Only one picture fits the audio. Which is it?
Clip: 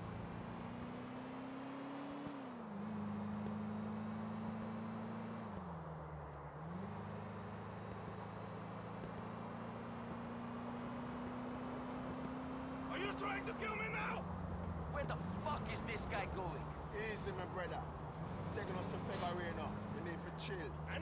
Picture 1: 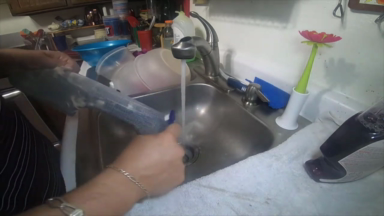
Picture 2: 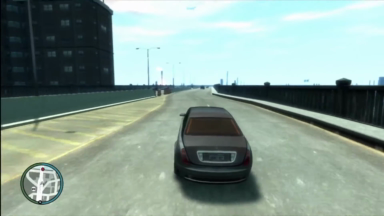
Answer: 2